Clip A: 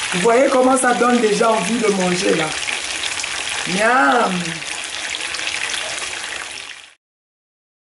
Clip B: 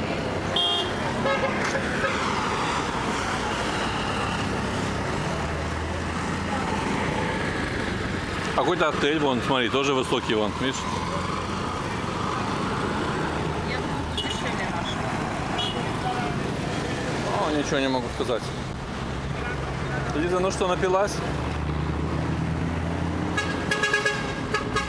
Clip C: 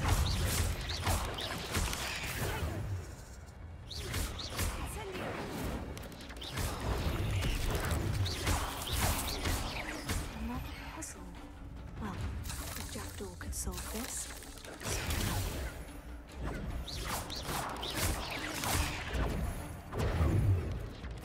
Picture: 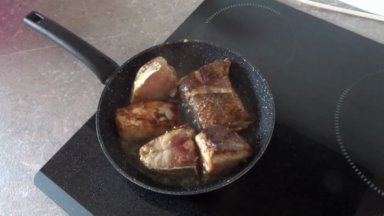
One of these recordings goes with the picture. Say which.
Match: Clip A